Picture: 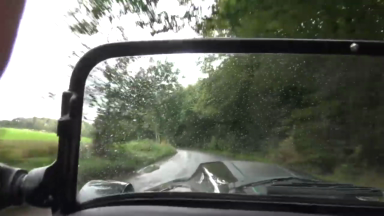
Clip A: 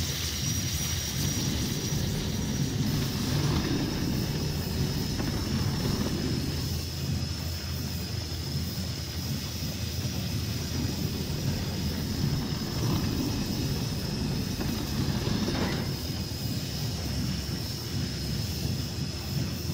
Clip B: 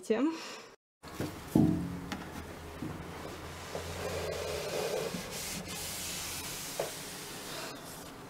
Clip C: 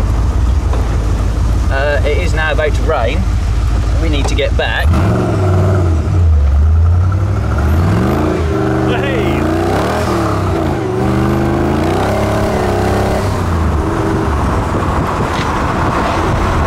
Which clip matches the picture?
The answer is C